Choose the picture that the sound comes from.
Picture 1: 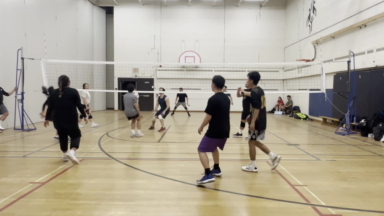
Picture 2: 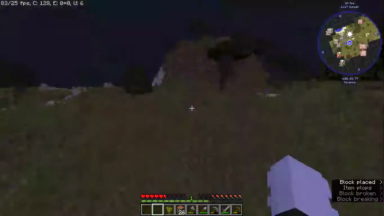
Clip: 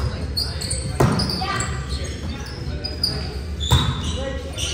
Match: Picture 1